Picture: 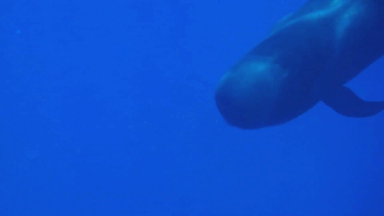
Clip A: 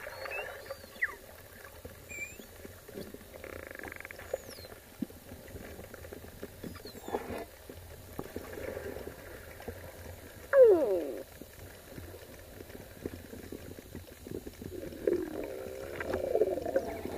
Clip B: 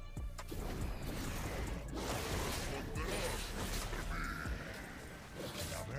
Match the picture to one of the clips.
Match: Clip A